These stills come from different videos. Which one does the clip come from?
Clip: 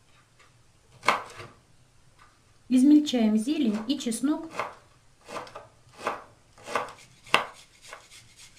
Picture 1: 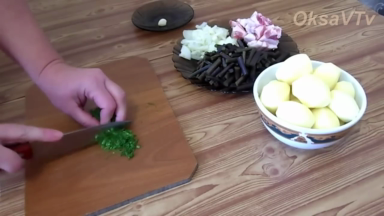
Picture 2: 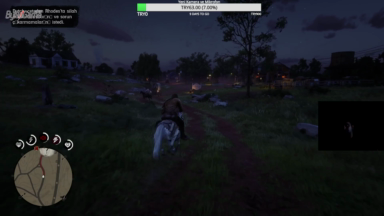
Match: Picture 1